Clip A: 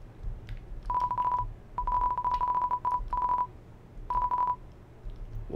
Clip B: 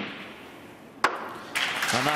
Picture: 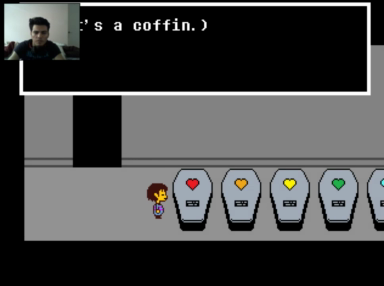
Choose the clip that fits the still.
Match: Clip A